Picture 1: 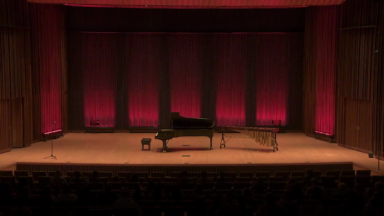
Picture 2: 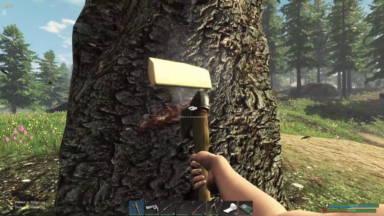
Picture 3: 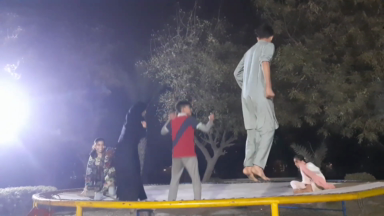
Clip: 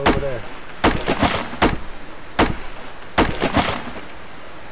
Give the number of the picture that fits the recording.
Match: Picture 2